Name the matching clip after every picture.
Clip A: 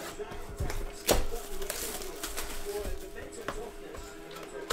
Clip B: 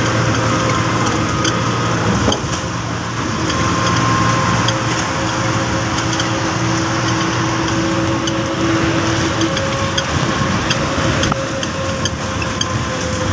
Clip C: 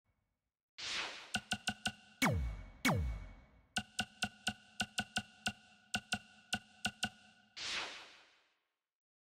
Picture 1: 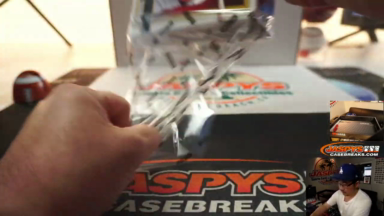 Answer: A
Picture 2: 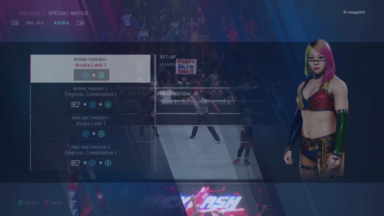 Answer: C